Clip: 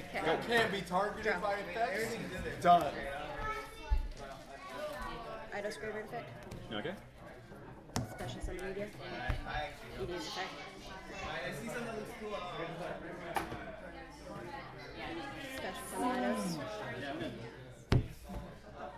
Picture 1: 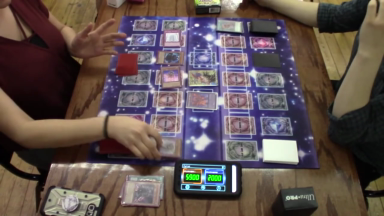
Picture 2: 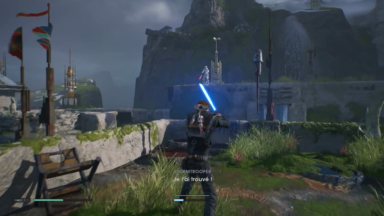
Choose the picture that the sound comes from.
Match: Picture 1